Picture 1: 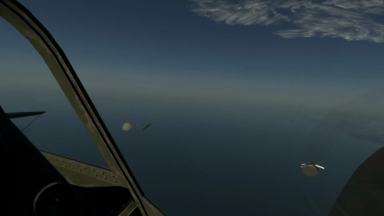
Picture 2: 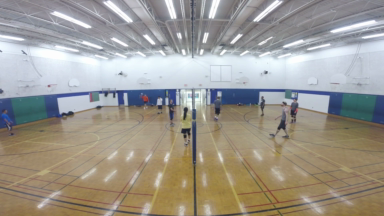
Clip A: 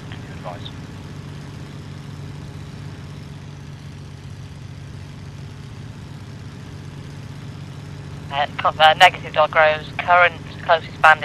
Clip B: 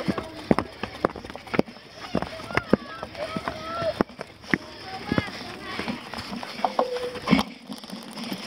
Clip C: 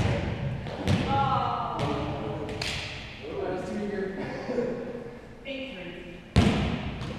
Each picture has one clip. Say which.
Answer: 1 A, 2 C